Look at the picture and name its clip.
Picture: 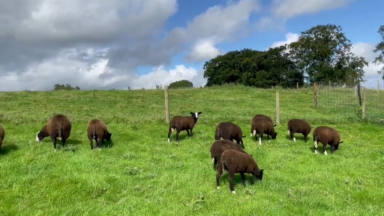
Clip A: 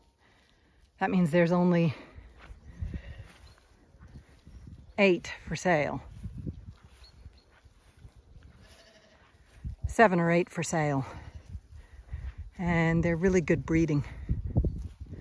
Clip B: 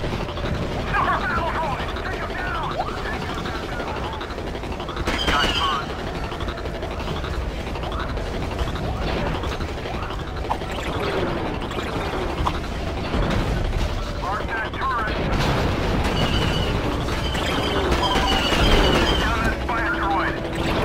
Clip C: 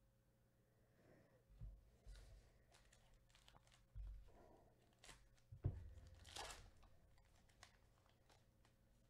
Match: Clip A